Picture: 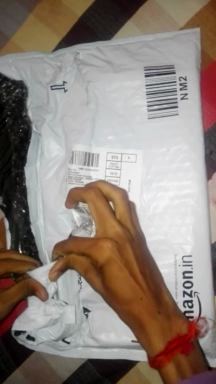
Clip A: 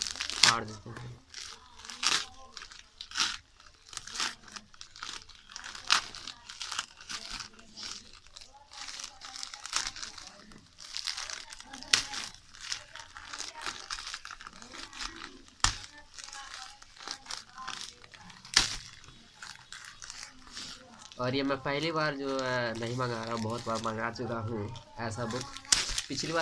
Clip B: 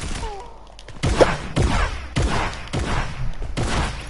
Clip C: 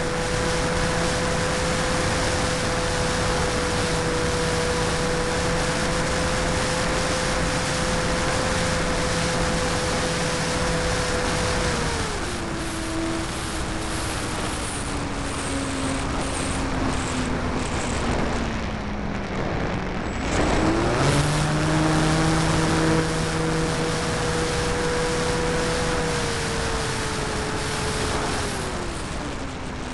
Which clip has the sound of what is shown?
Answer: A